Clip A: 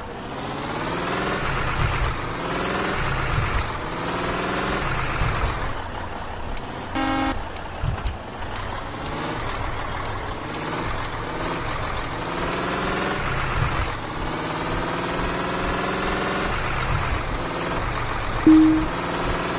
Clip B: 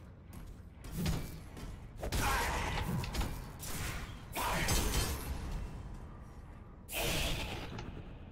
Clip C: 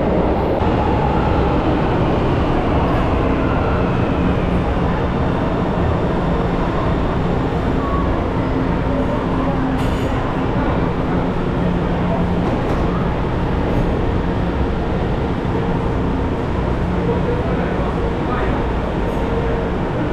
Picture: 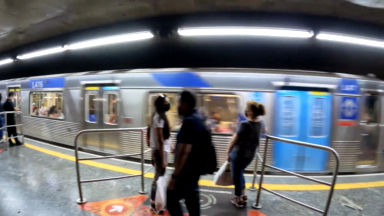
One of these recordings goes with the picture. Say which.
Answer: C